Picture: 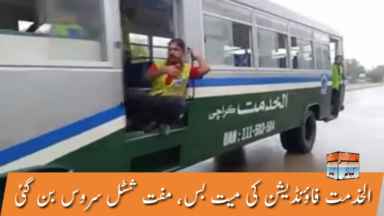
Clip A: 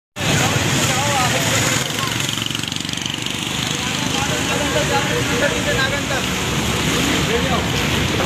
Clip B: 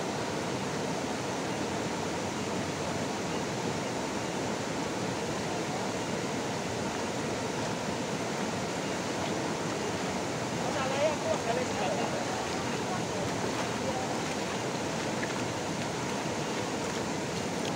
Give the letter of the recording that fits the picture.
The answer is A